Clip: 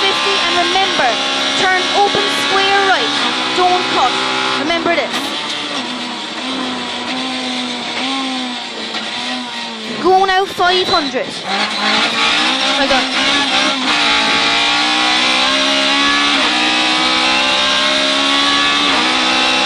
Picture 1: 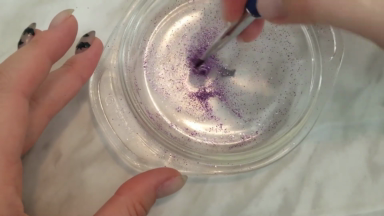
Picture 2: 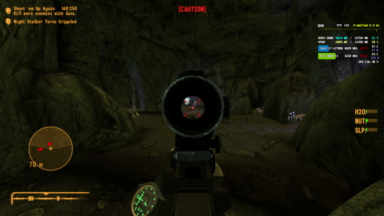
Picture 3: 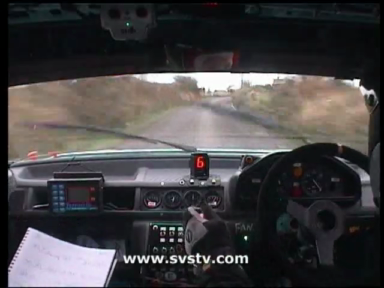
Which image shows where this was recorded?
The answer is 3